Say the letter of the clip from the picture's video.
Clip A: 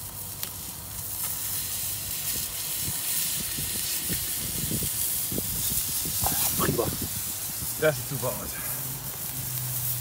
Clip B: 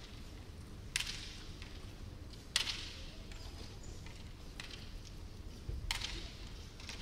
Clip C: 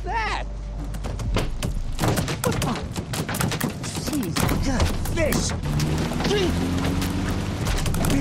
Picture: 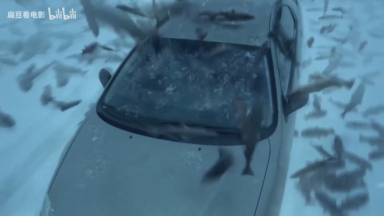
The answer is C